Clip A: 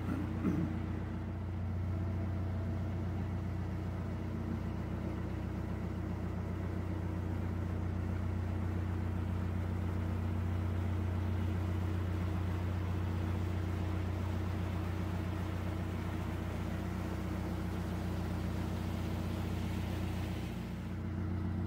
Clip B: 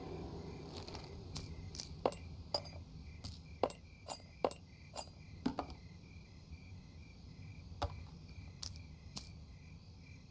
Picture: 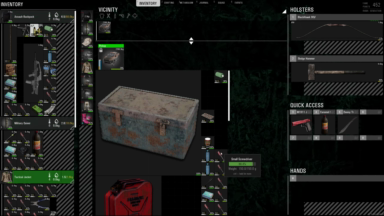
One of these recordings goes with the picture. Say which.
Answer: B